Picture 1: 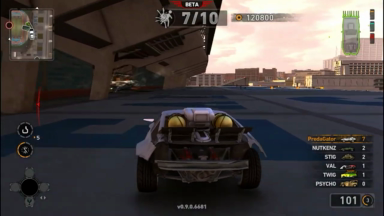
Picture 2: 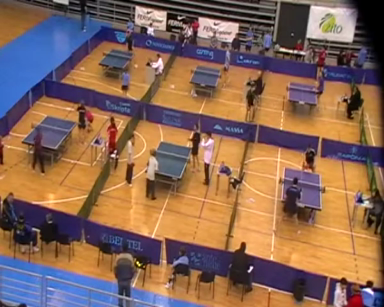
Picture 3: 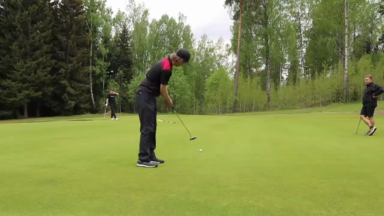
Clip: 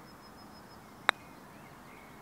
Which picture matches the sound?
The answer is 3